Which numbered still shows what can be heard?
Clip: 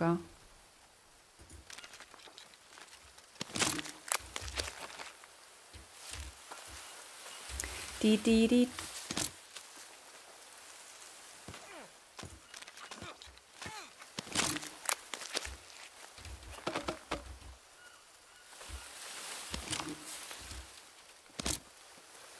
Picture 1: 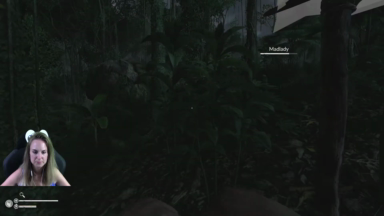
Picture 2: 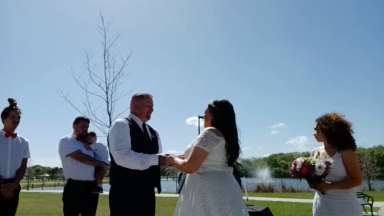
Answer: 1